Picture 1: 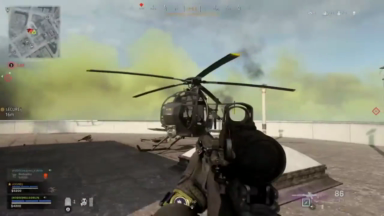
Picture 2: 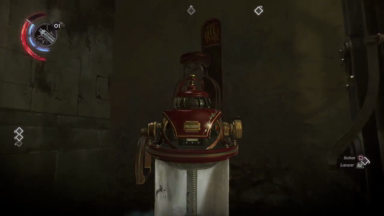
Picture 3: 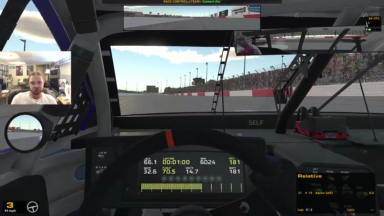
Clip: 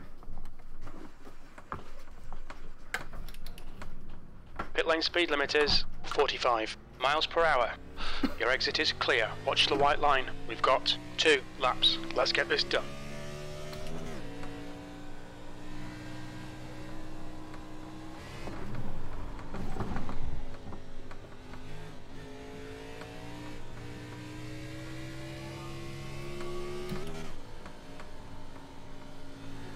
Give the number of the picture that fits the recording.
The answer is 3